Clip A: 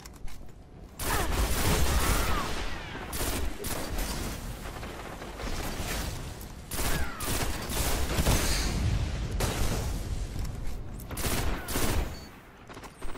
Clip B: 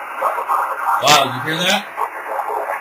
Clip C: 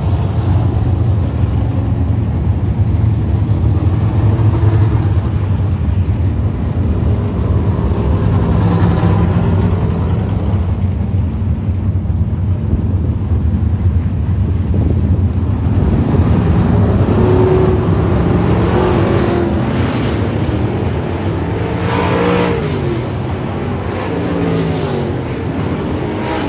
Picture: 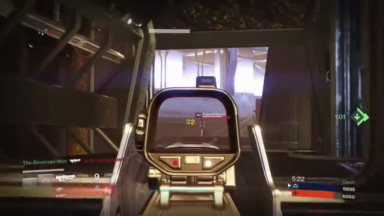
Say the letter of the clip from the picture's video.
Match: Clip A